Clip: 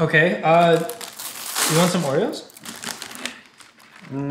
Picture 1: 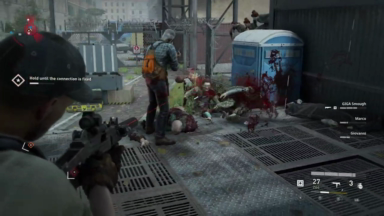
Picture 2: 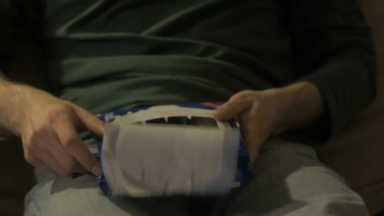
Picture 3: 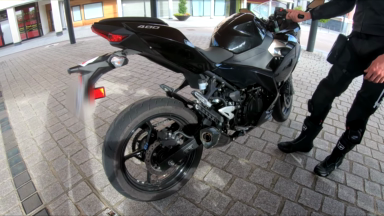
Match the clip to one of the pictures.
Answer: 2